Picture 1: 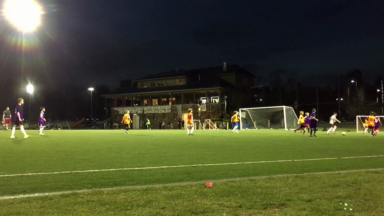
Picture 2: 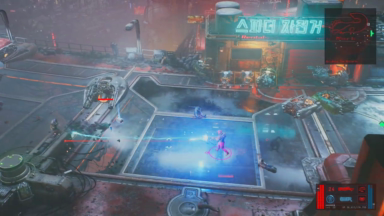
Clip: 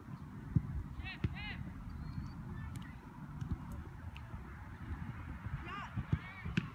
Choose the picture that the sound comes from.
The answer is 1